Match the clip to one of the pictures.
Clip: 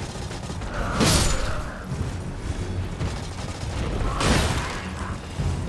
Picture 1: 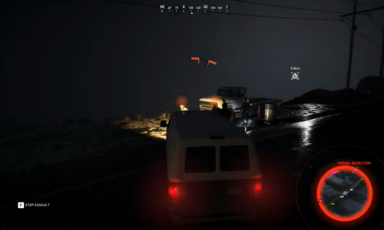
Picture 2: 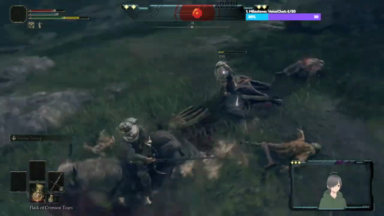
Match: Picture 2